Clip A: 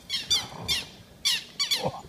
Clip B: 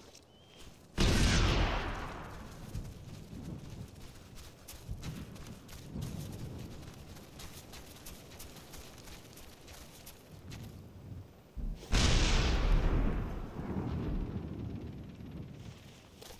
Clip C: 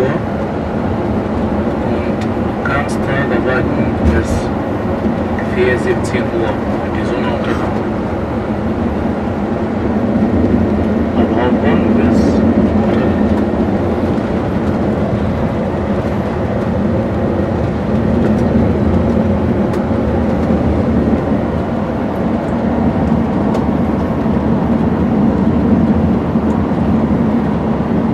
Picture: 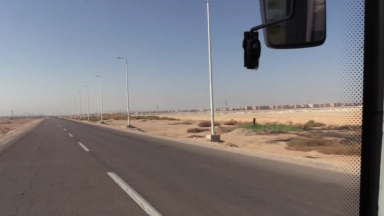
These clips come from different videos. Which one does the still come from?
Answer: C